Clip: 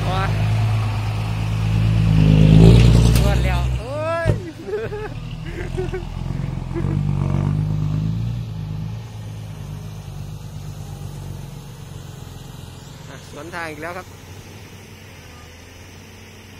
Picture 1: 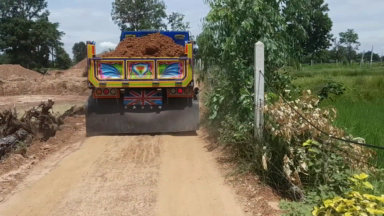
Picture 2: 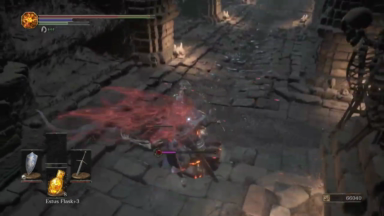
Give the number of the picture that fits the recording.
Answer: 1